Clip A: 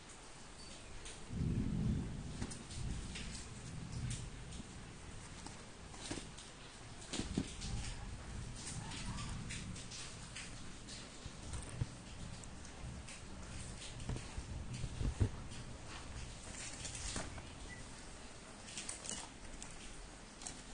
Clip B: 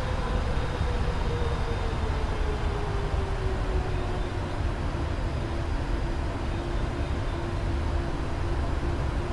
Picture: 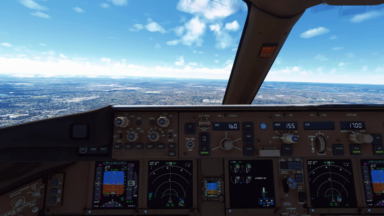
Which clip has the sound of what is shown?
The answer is B